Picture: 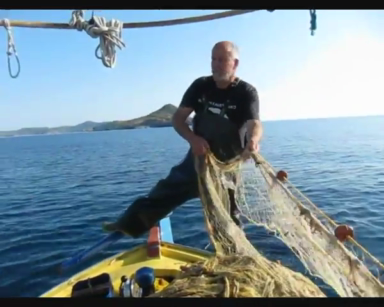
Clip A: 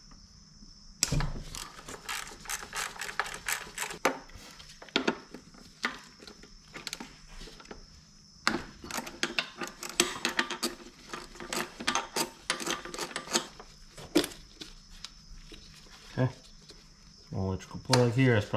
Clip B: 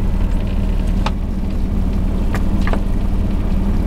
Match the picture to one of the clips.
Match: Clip B